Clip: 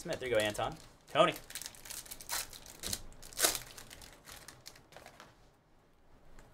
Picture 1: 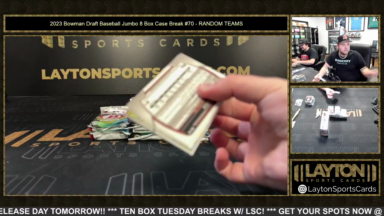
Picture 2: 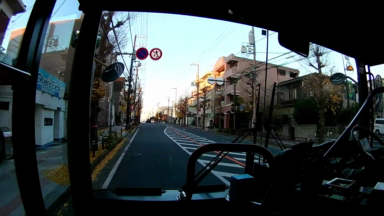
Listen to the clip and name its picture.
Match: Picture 1